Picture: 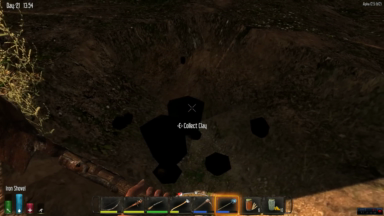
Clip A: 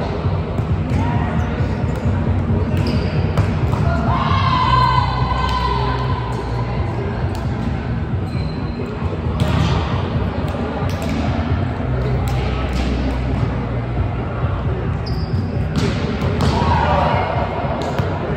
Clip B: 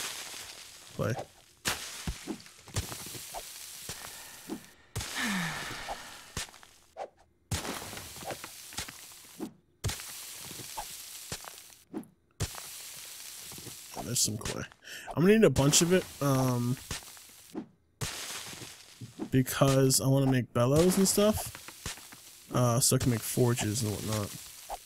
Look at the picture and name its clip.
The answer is B